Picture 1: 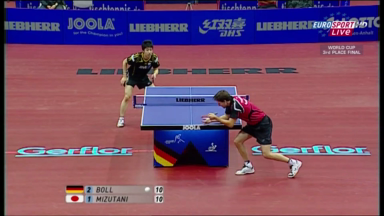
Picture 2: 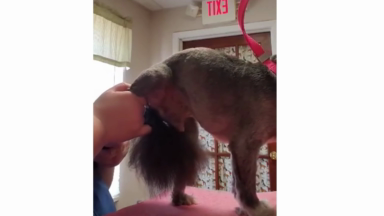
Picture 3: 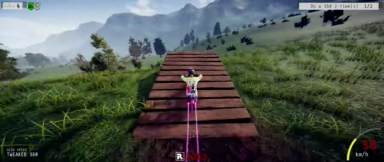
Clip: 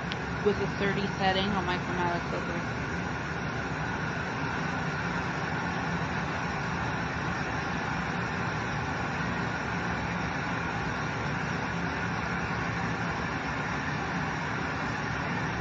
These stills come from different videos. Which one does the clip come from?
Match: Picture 2